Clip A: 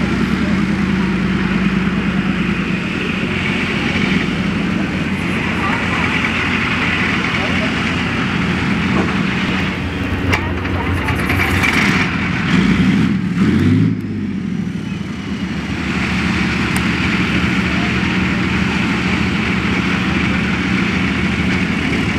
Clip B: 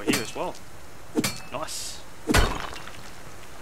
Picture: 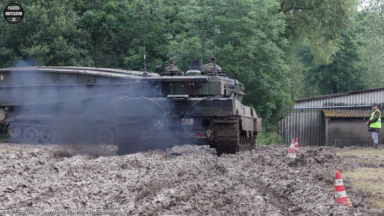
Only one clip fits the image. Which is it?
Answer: A